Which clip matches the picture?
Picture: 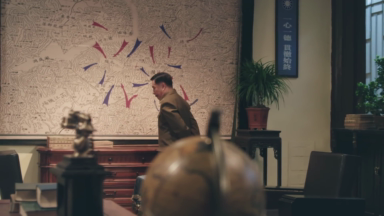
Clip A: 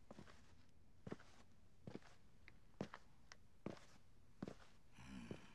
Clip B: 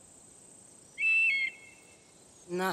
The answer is A